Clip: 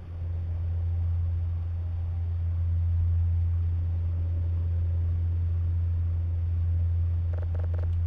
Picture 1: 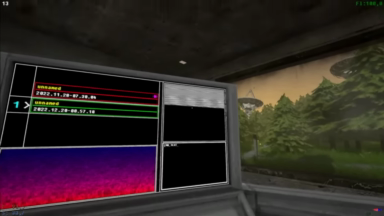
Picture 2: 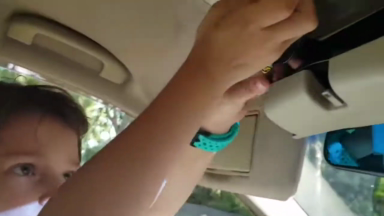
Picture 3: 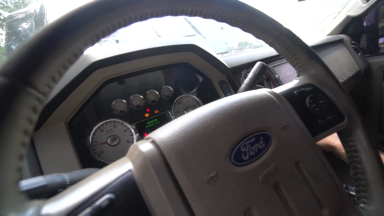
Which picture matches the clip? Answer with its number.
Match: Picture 1